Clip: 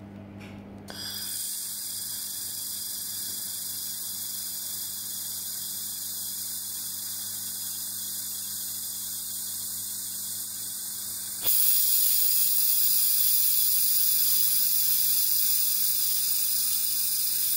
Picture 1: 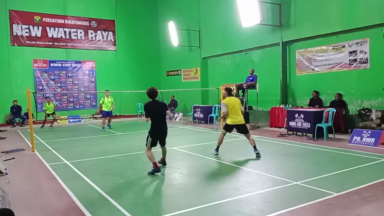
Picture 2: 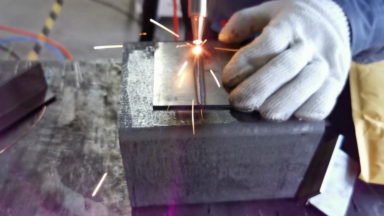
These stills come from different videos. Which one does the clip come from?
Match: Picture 2